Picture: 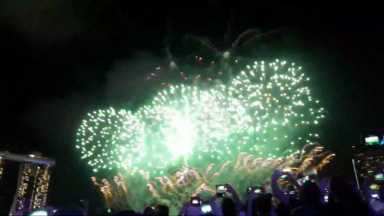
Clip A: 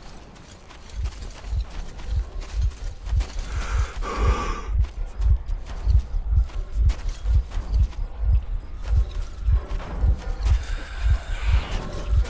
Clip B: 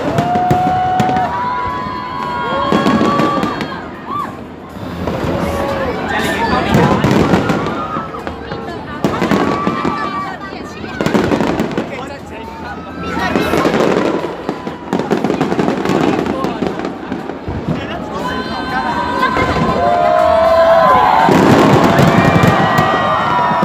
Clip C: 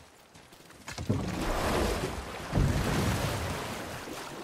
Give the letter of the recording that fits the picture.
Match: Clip B